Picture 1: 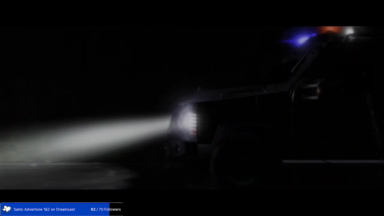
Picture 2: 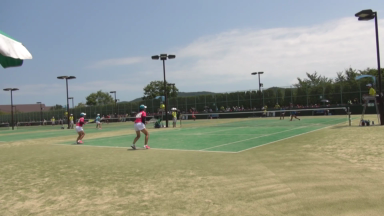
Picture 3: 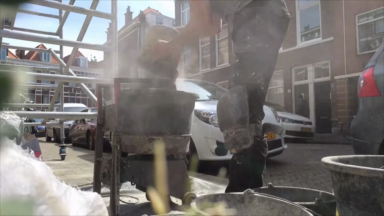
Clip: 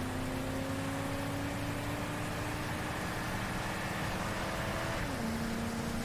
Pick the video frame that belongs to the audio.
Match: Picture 1